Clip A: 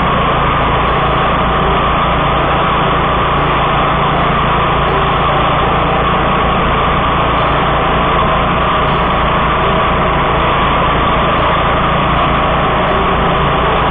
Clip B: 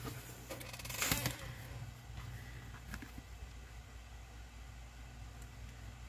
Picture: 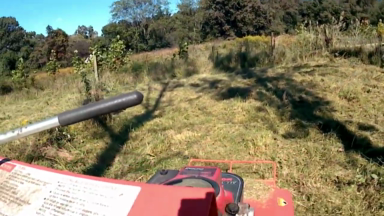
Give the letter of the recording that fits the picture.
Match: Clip A